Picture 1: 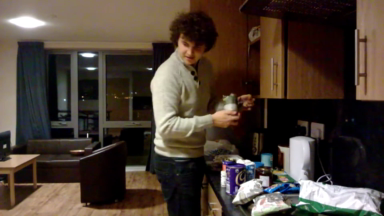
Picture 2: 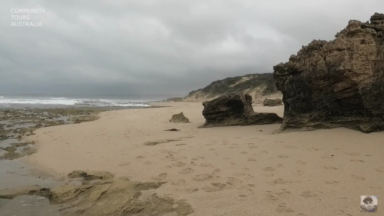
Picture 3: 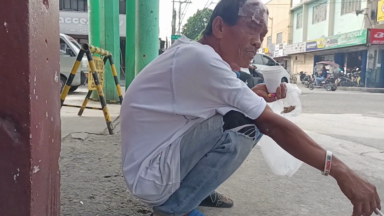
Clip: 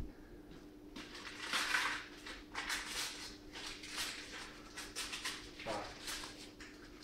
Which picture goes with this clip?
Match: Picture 1